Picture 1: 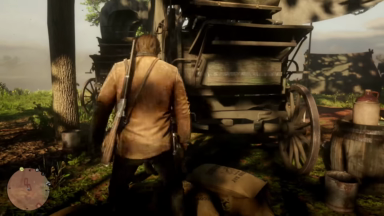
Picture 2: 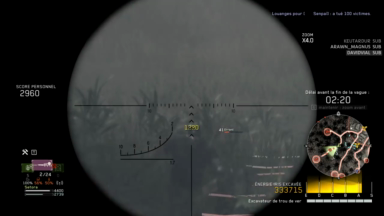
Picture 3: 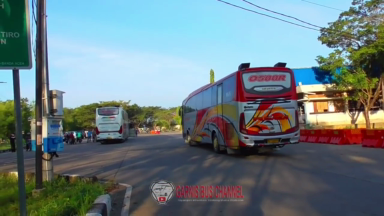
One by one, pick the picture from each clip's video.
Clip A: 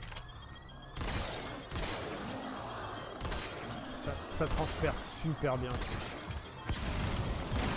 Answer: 2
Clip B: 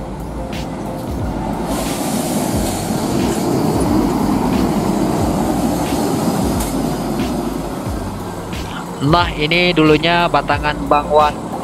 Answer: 3